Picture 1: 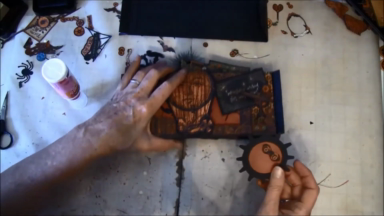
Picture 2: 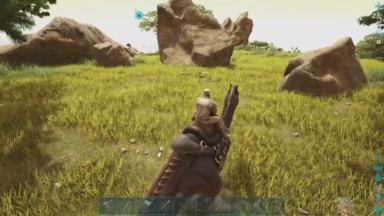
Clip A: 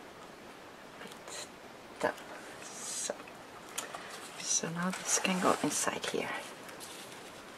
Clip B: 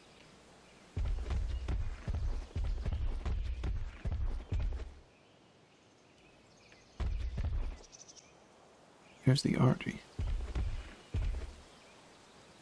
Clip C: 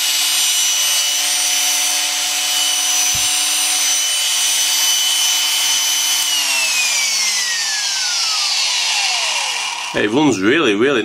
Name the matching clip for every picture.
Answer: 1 A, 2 B